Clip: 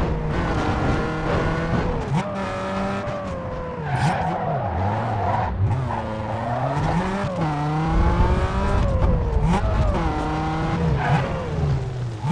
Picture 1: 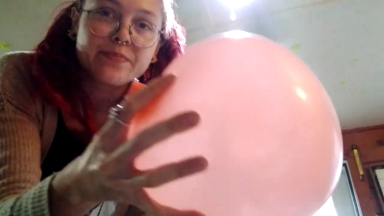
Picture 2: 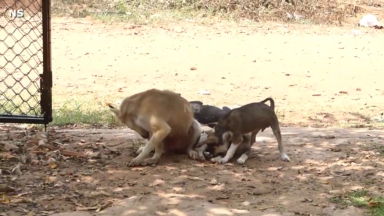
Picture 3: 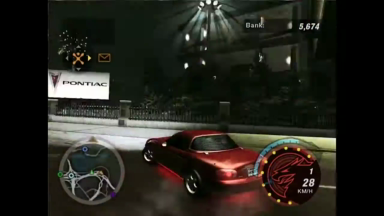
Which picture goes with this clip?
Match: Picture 3